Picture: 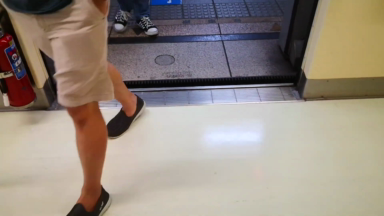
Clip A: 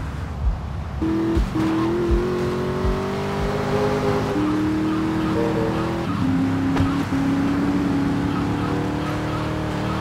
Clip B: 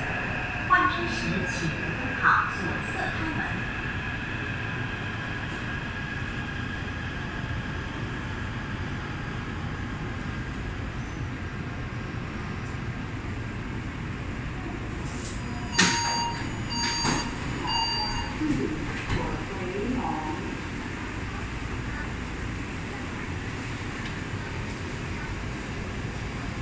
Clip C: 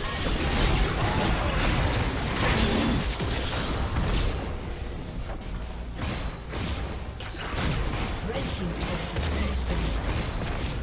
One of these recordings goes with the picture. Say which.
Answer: B